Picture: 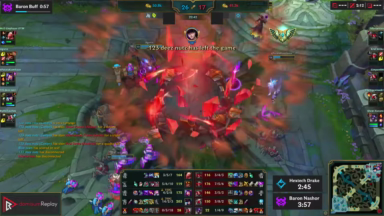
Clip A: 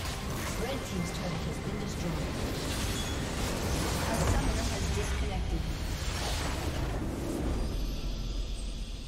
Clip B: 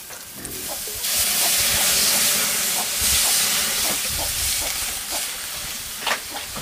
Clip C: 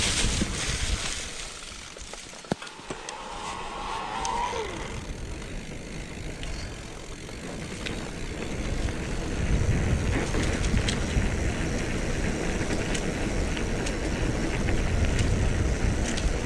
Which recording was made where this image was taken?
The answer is A